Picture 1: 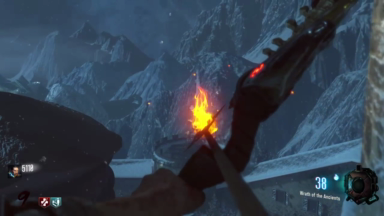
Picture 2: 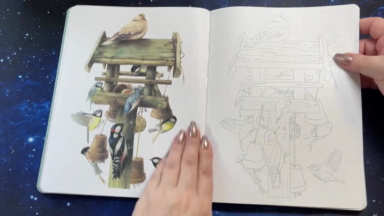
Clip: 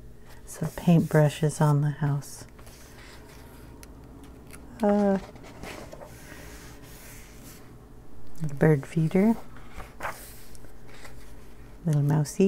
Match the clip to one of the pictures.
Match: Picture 2